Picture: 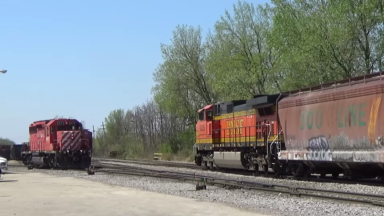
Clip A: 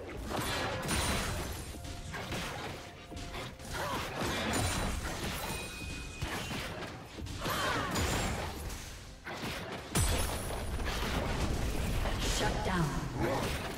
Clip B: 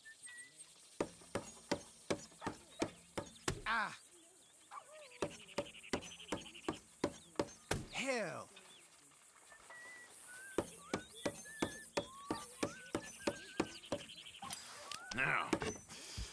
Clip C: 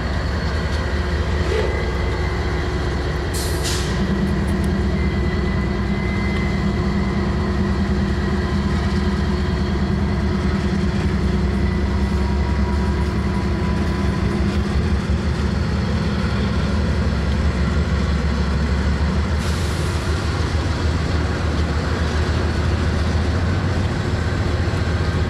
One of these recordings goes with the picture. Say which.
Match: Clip C